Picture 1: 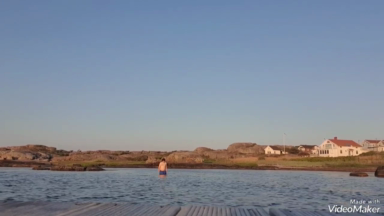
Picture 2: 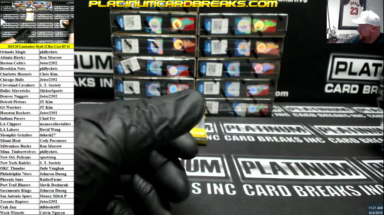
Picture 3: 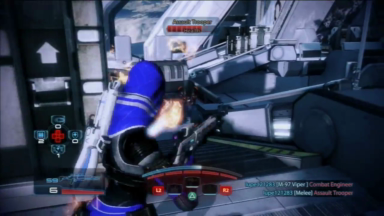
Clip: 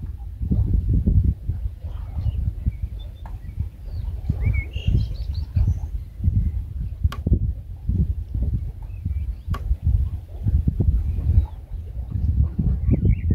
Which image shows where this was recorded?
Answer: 1